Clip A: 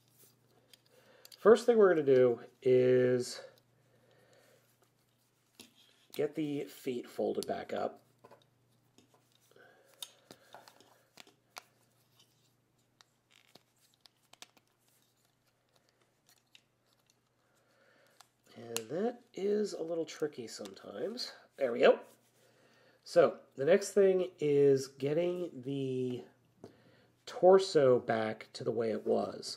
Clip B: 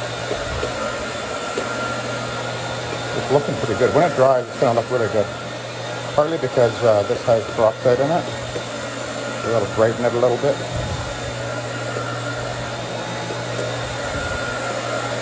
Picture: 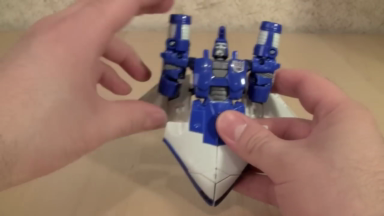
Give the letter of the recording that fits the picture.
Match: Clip A